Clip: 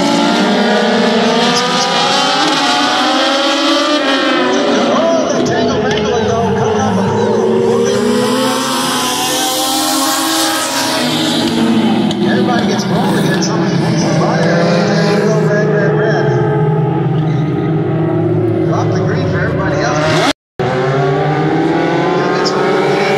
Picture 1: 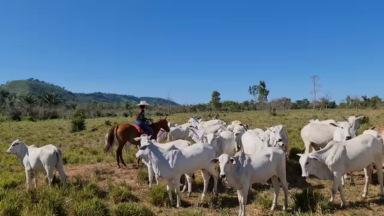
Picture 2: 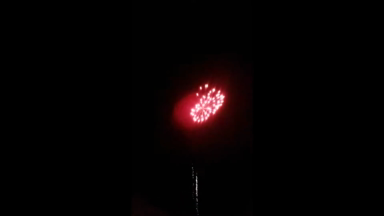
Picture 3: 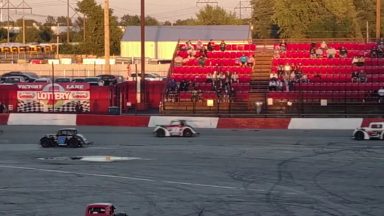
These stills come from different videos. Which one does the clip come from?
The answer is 3